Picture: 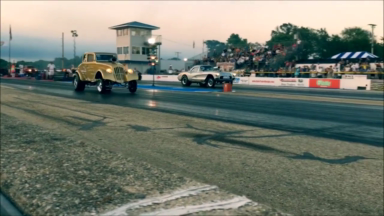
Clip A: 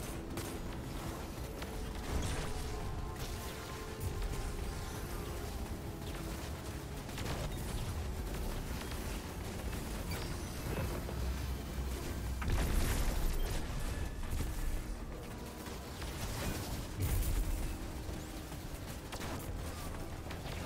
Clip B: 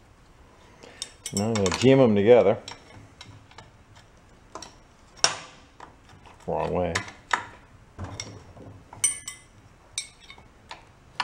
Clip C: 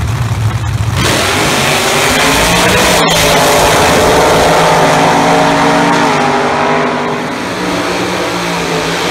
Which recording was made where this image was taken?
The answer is C